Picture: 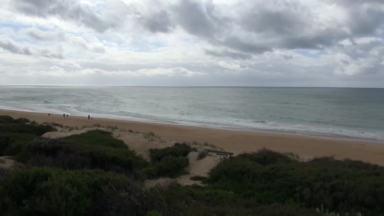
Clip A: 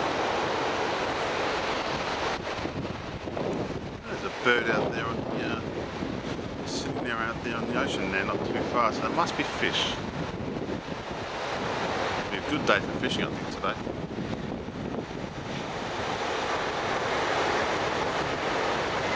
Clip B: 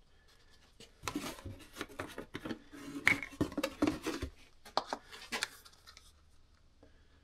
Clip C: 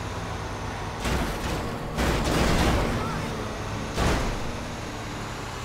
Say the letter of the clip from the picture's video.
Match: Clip A